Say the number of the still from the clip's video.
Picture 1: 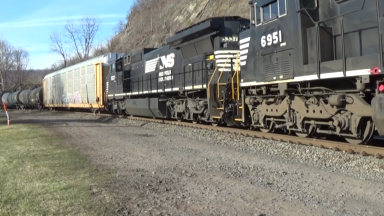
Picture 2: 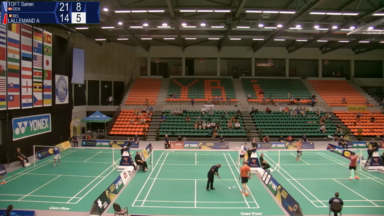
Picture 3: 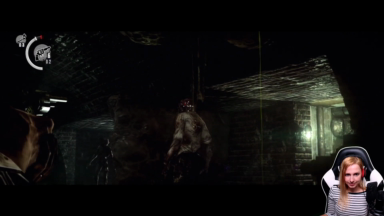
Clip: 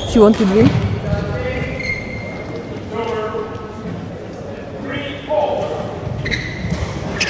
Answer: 2